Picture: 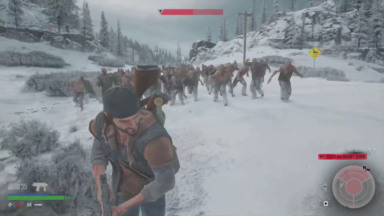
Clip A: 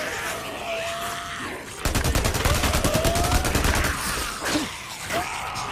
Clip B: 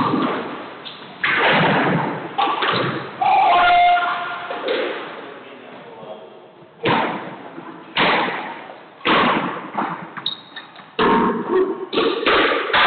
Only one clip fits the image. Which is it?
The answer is A